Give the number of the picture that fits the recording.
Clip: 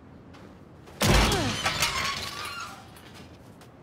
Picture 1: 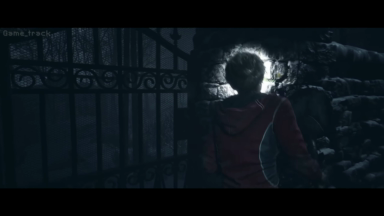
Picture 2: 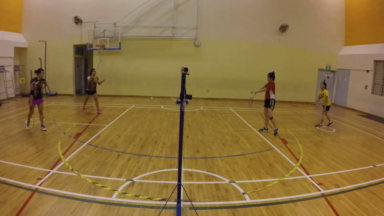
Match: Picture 1